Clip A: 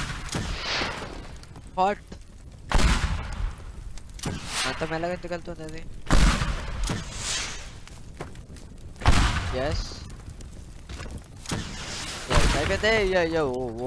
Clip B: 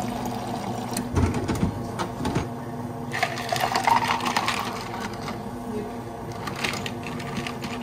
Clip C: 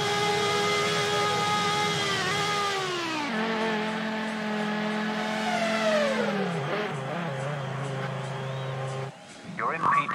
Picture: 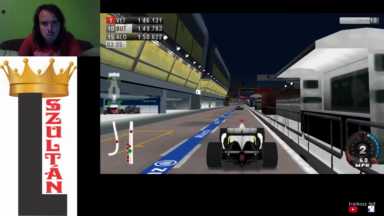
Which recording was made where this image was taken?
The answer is C